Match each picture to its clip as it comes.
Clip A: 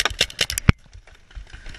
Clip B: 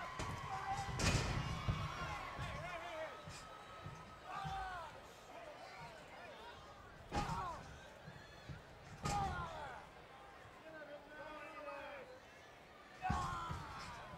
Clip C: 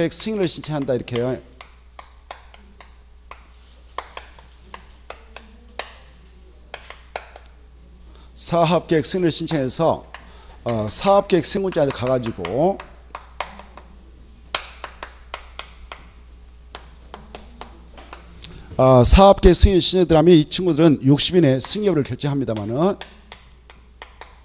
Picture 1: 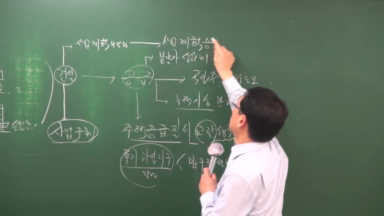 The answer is C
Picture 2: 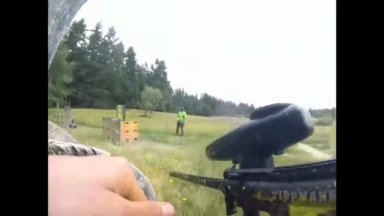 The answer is A